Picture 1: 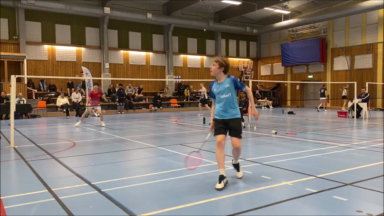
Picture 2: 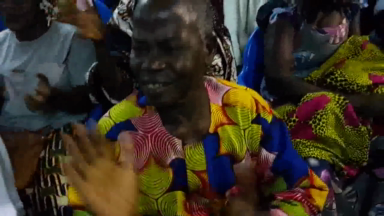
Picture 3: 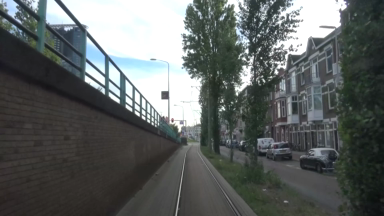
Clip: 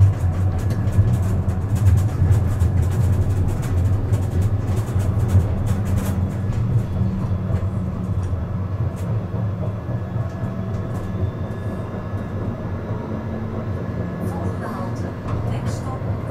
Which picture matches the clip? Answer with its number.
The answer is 3